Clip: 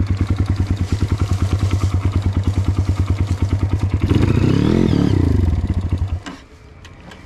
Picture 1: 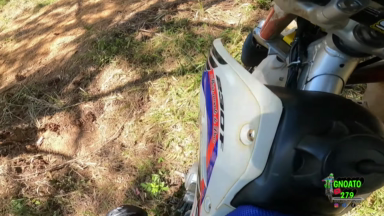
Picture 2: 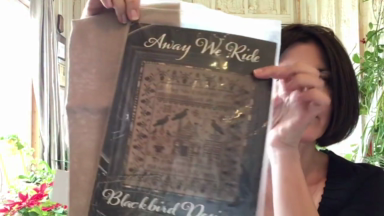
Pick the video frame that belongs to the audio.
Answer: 1